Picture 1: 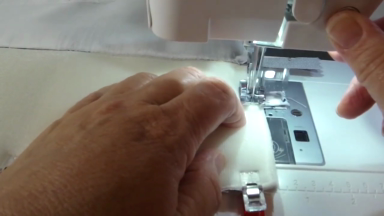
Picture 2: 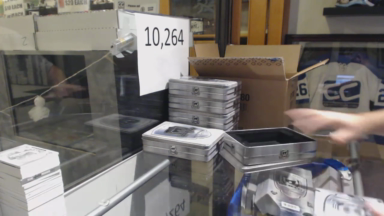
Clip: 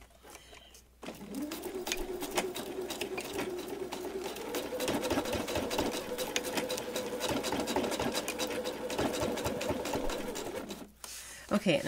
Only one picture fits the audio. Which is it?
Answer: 1